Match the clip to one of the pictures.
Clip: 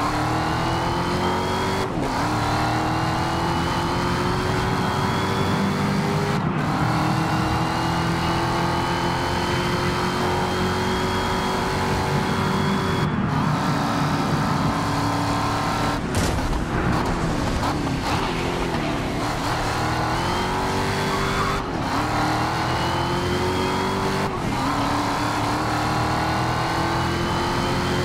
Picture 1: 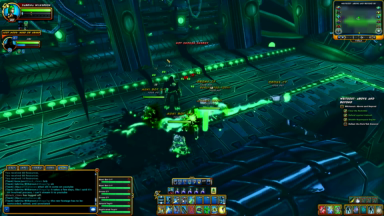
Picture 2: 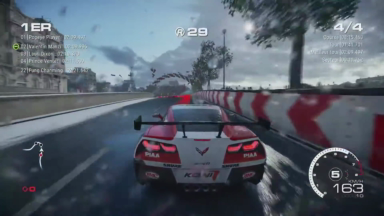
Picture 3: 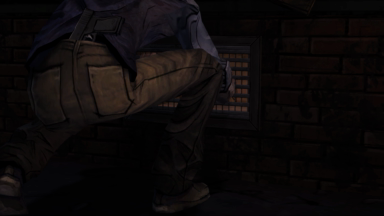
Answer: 2